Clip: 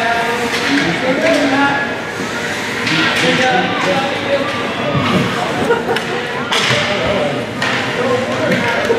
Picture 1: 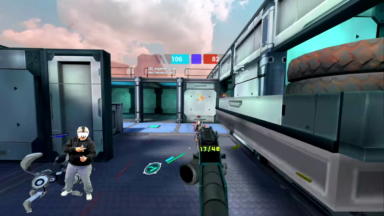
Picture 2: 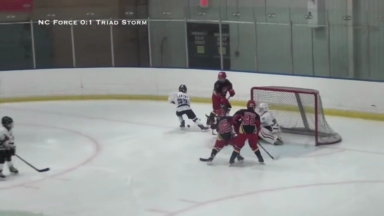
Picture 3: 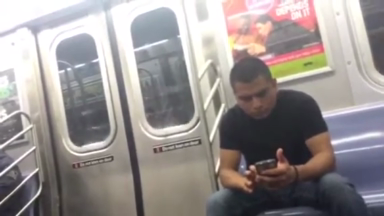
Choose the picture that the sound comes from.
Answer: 2